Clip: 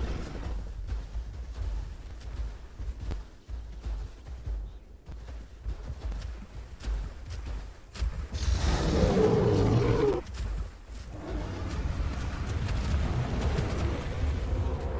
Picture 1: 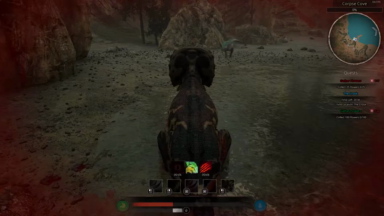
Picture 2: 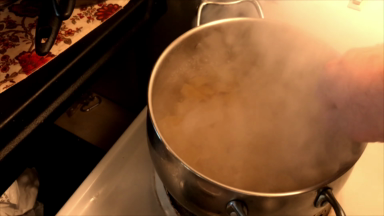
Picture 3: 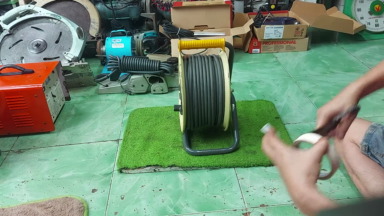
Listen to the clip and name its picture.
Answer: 1